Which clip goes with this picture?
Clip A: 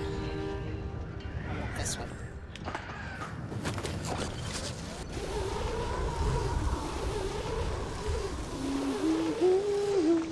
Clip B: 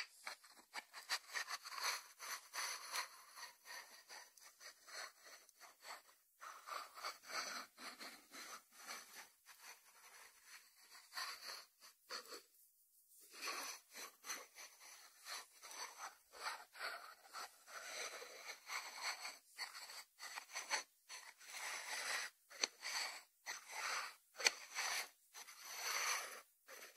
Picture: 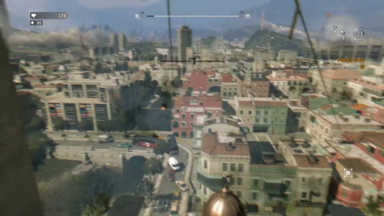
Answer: A